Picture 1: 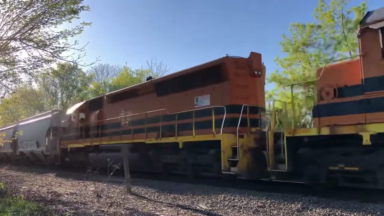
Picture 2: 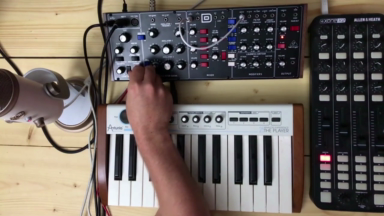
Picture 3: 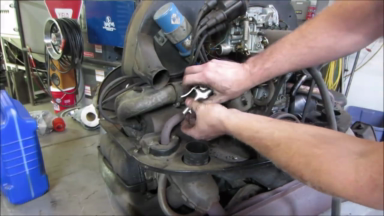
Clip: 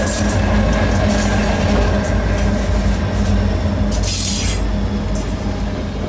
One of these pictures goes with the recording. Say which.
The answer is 1